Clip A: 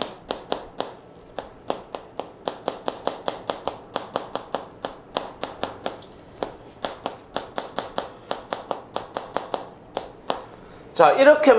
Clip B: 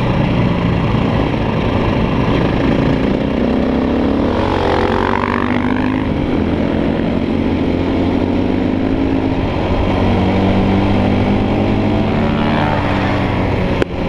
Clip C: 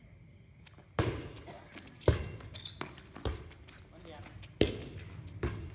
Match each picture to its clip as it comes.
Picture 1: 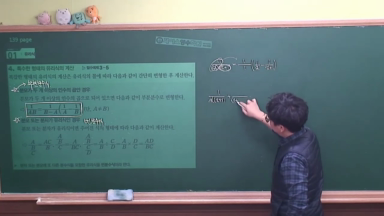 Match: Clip A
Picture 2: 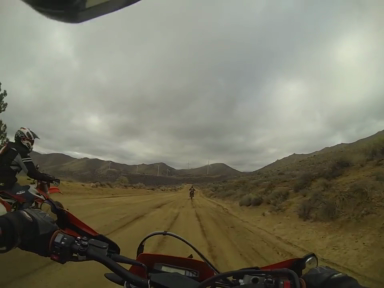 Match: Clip B